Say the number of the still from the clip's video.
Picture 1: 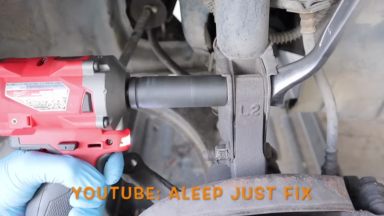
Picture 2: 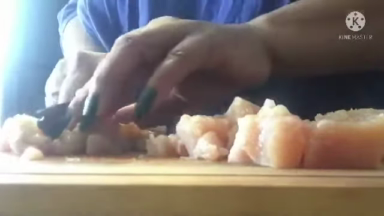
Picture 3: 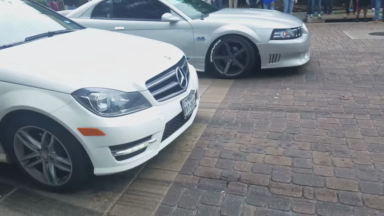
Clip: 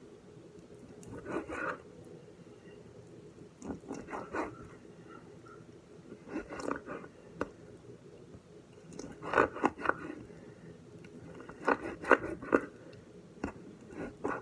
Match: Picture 2